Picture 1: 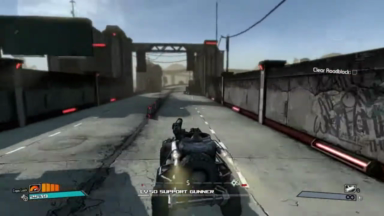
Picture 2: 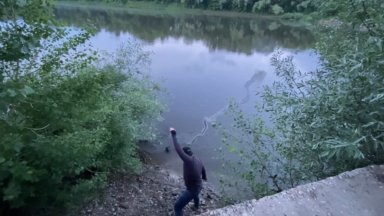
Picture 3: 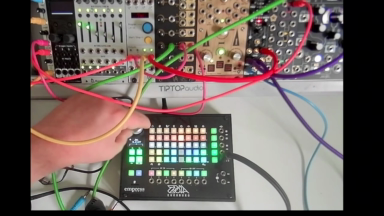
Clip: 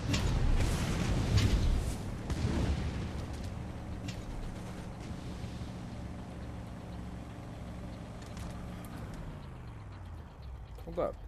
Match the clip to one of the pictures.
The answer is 1